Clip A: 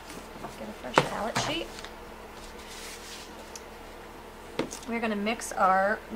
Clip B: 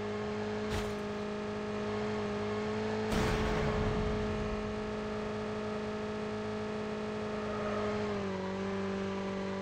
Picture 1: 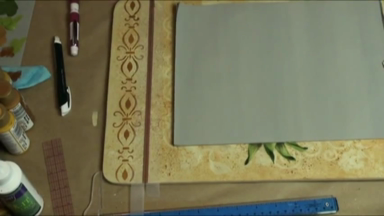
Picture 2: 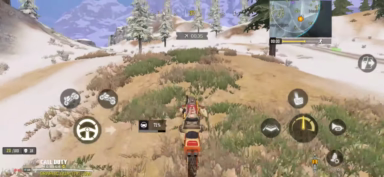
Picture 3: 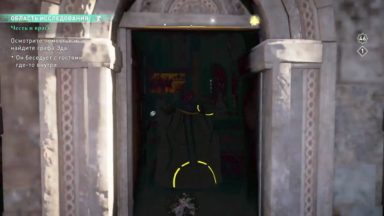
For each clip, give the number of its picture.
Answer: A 1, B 2